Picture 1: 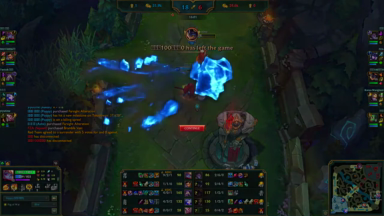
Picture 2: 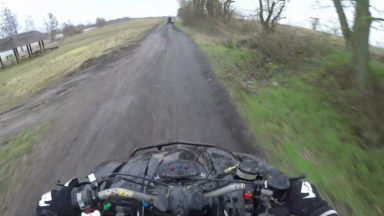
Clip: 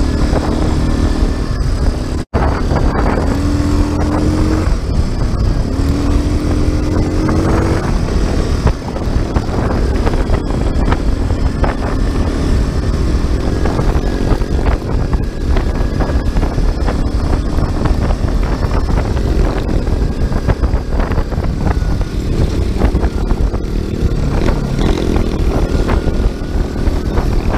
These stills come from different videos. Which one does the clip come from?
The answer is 2